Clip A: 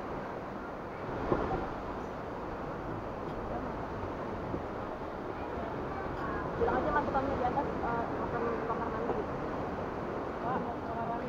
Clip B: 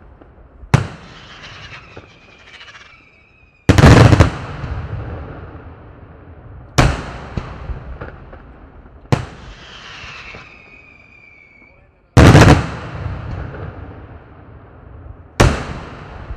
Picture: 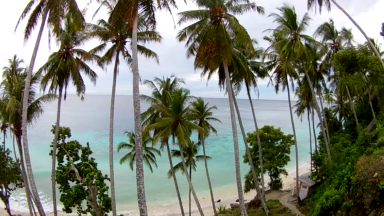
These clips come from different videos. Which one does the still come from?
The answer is A